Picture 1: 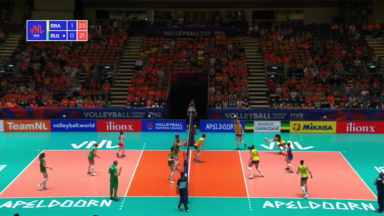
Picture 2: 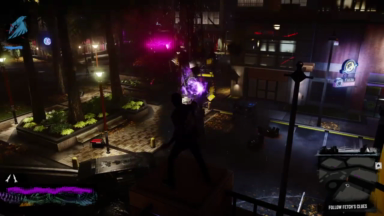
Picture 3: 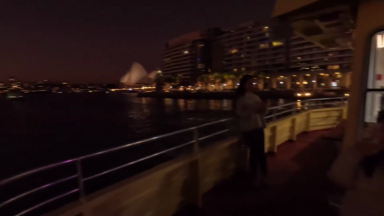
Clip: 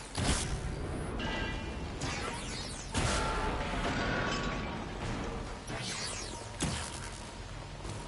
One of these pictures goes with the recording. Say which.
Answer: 2